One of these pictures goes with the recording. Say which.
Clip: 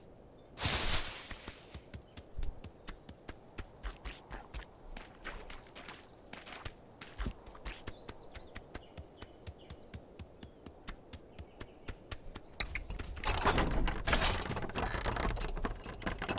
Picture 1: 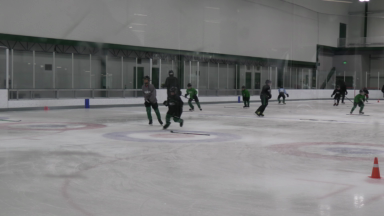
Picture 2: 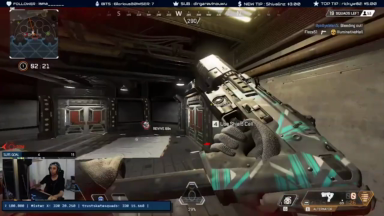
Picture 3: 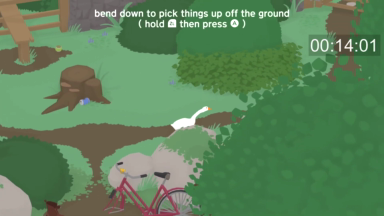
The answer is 3